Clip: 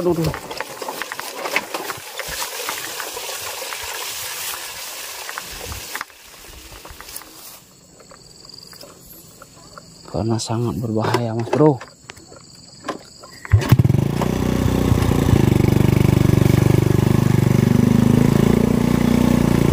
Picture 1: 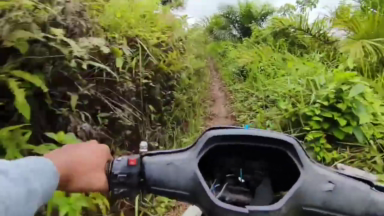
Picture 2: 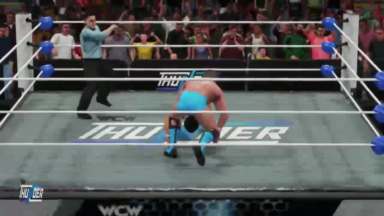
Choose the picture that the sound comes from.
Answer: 1